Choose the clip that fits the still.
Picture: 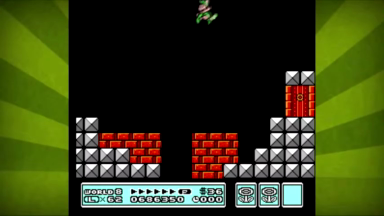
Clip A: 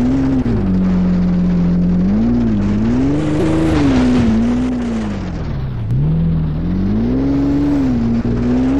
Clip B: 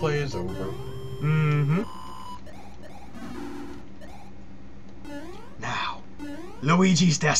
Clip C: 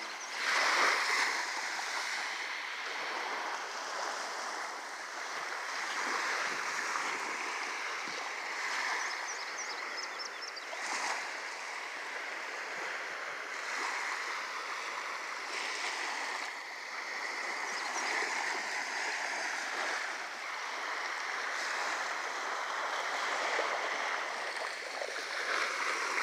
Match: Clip B